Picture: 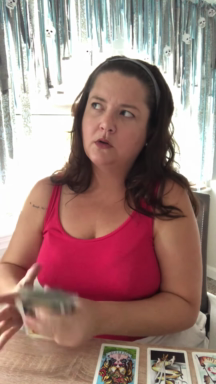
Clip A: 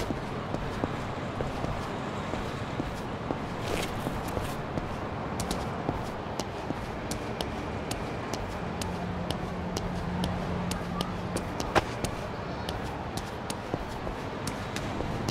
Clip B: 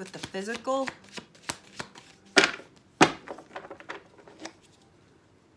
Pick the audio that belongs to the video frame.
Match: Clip B